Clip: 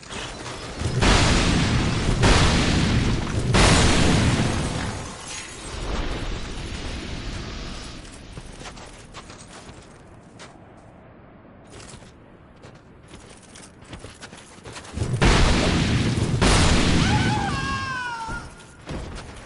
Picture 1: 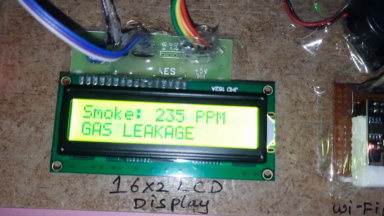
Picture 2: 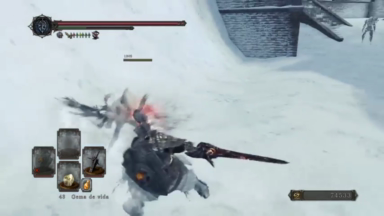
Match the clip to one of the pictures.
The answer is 2